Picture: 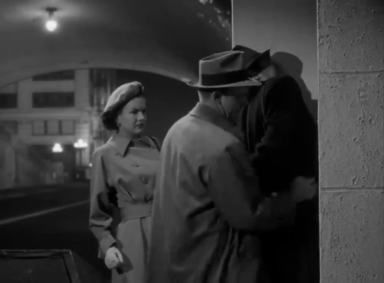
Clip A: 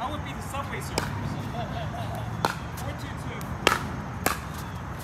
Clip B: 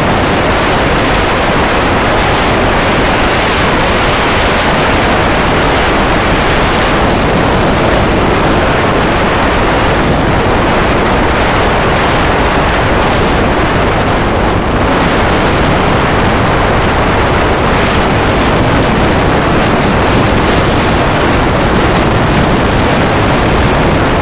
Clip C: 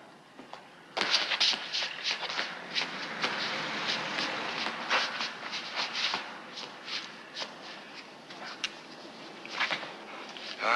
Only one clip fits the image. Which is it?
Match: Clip C